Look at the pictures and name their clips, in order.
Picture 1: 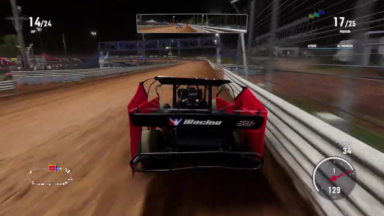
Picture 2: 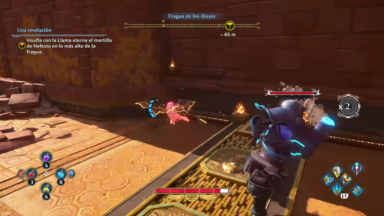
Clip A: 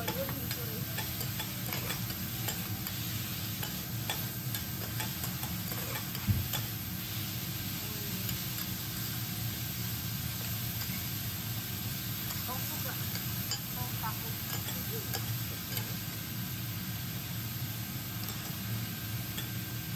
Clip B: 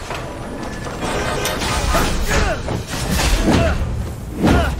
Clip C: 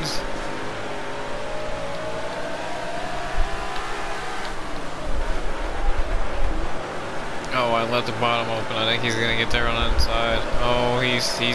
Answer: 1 C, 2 B